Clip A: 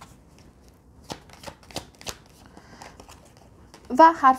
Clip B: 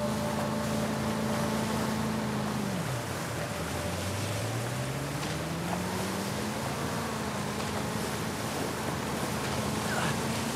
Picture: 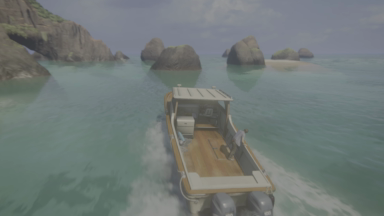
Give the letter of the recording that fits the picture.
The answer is B